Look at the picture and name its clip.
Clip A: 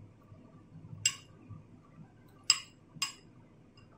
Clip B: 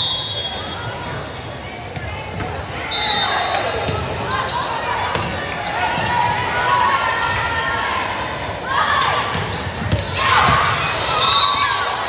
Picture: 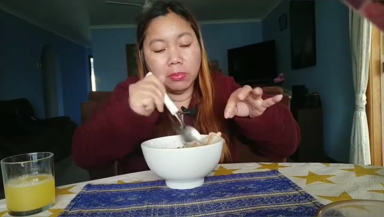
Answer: A